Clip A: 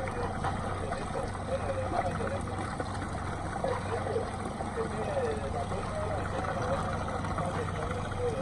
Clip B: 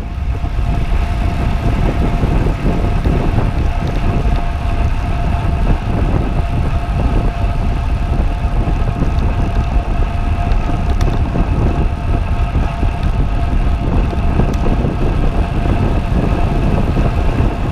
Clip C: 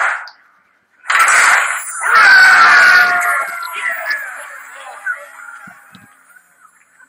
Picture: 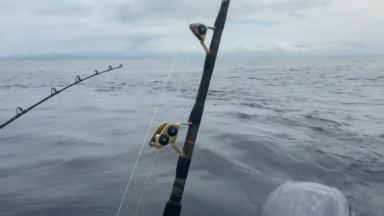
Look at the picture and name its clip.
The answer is A